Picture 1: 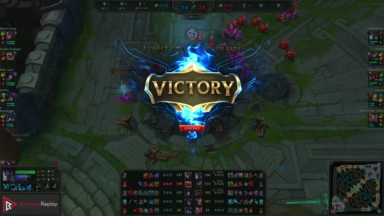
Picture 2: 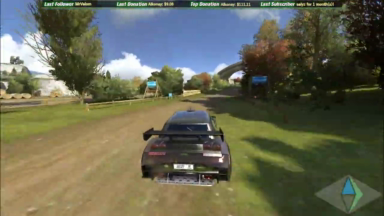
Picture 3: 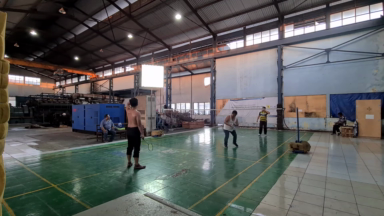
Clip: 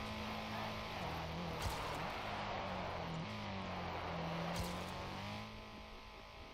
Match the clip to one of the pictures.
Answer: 2